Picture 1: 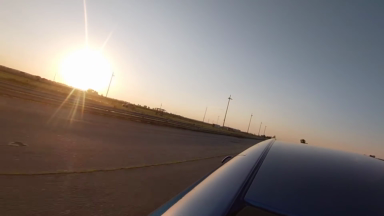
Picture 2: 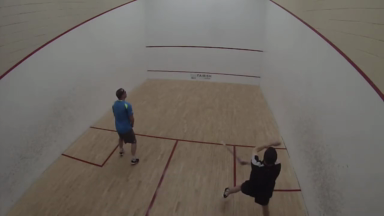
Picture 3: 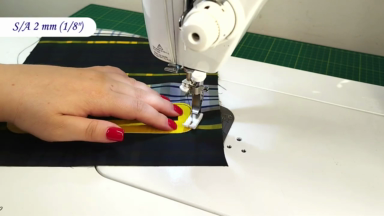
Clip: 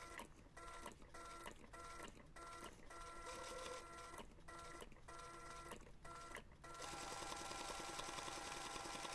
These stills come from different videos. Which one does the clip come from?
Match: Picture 3